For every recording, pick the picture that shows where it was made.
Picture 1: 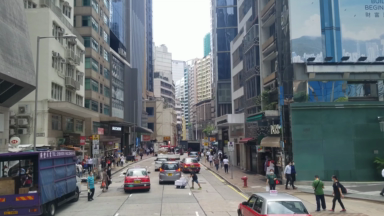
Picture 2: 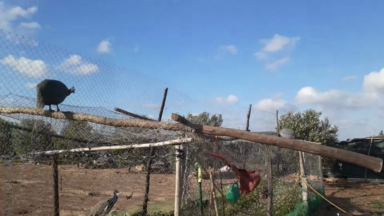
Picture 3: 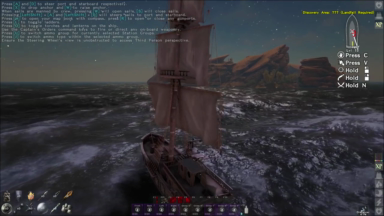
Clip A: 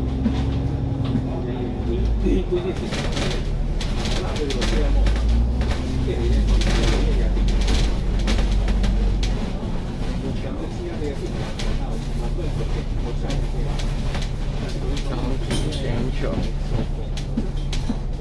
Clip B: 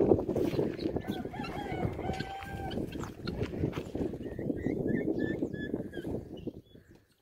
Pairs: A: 1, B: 2